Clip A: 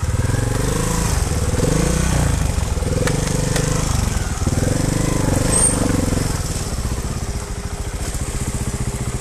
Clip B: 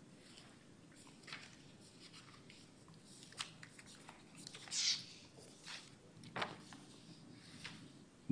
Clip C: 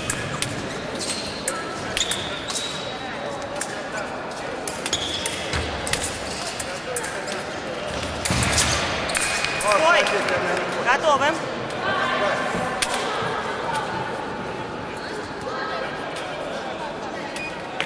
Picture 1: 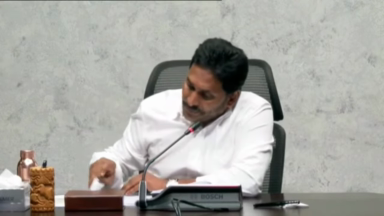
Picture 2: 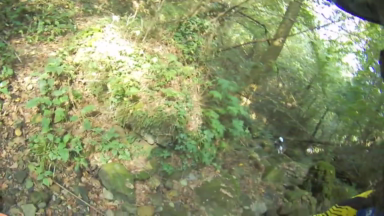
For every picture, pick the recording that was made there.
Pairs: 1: B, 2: A